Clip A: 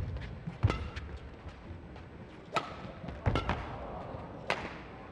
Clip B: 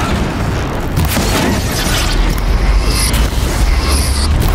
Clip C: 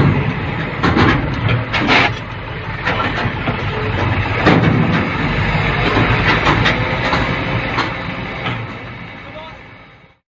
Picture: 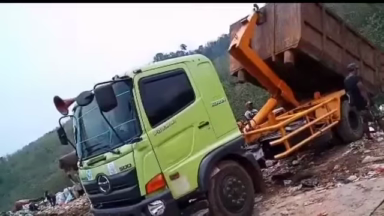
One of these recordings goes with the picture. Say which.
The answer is C